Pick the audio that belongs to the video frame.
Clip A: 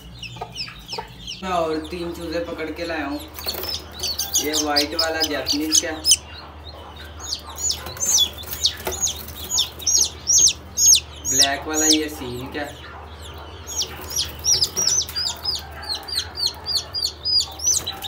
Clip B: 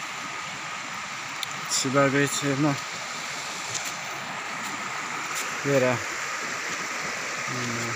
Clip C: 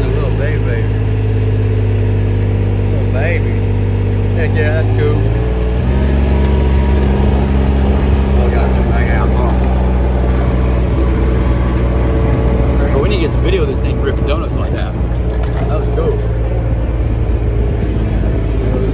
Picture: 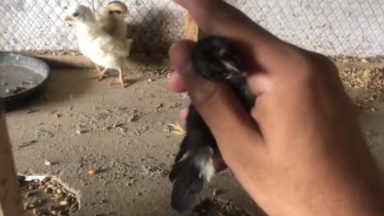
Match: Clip A